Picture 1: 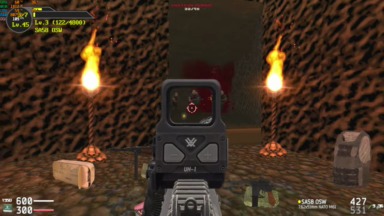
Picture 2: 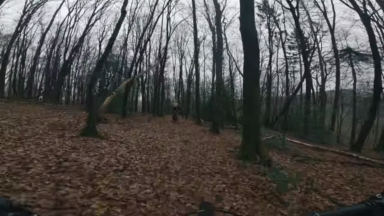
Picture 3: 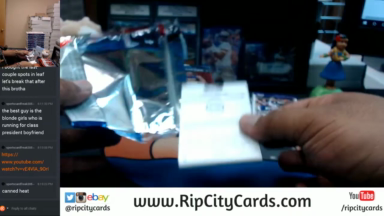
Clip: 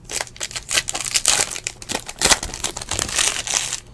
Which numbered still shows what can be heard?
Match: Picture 3